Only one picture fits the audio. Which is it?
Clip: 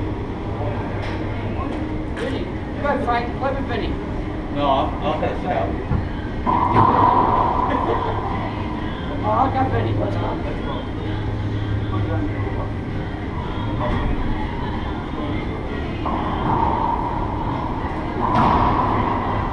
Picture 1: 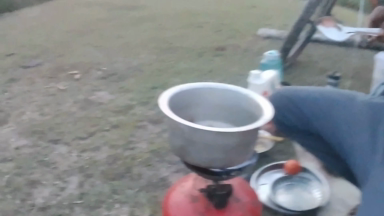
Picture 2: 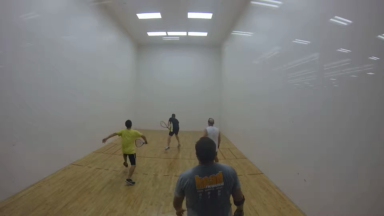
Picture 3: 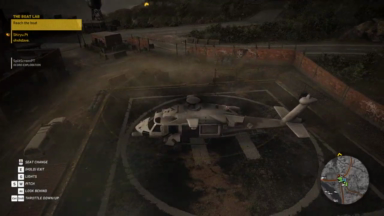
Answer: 2